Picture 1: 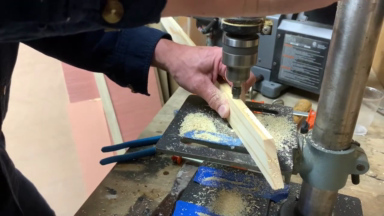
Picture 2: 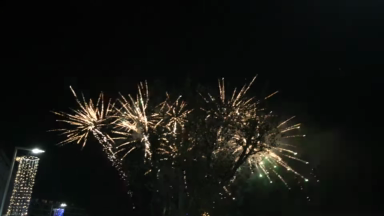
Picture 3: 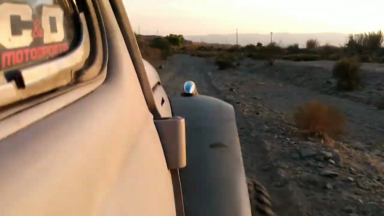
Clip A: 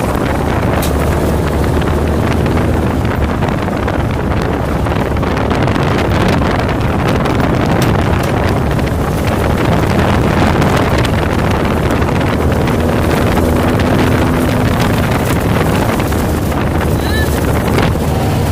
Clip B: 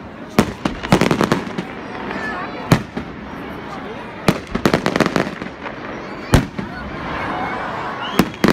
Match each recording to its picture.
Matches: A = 3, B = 2